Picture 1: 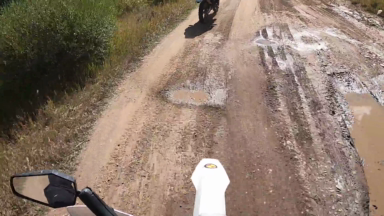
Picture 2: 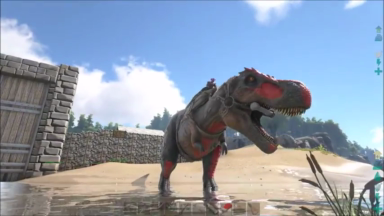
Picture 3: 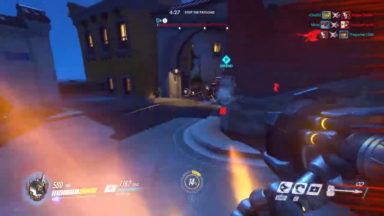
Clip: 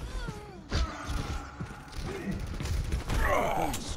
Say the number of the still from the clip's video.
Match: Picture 3